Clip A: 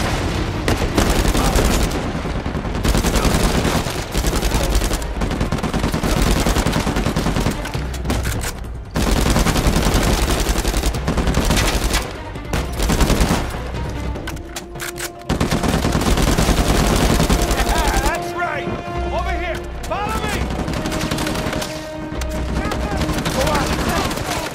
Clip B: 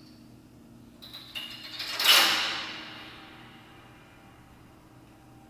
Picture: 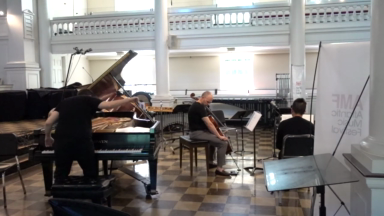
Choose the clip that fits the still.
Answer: B